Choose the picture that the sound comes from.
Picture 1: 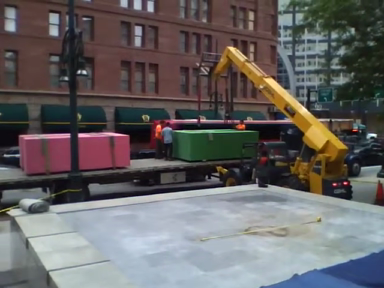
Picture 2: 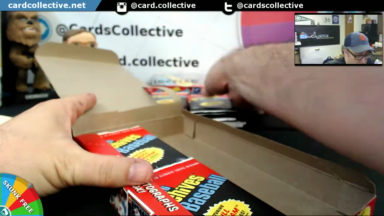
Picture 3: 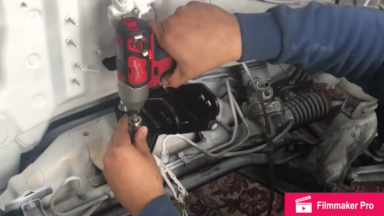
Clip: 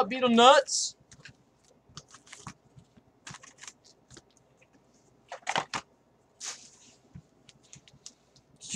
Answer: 2